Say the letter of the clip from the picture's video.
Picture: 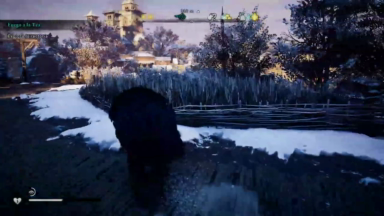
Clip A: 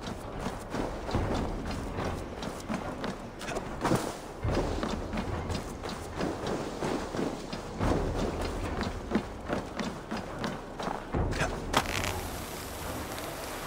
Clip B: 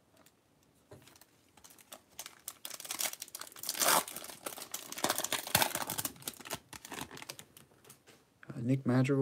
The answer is A